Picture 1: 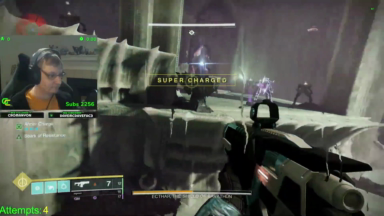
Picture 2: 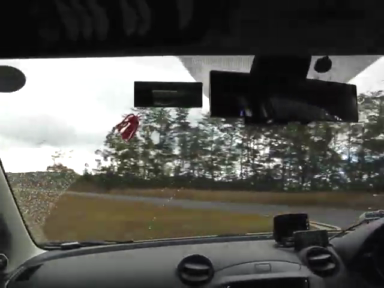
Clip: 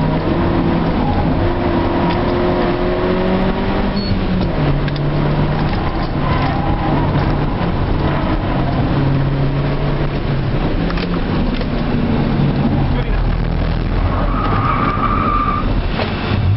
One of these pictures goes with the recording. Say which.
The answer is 2